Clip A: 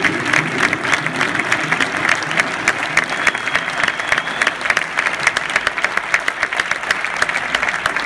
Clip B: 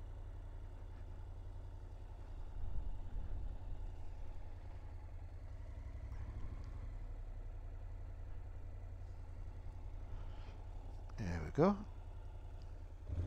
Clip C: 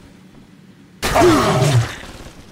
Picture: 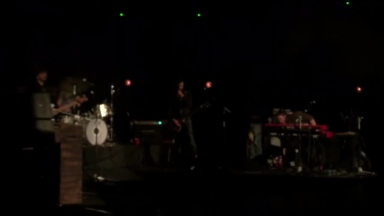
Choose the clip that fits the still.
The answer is A